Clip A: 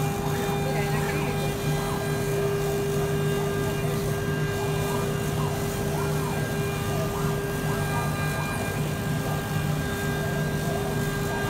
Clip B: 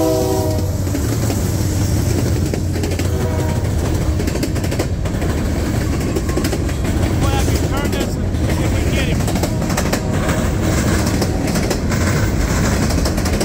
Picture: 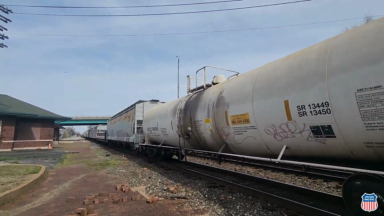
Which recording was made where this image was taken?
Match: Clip B